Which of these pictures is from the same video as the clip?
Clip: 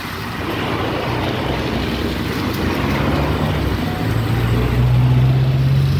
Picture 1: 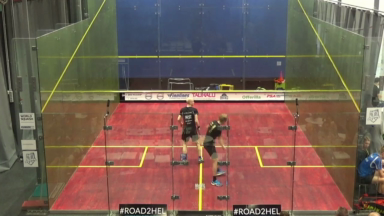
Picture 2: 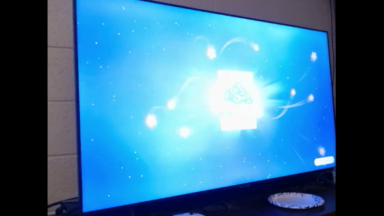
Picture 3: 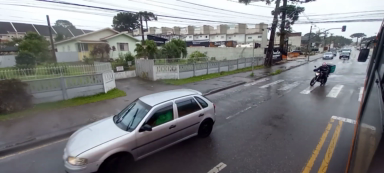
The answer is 3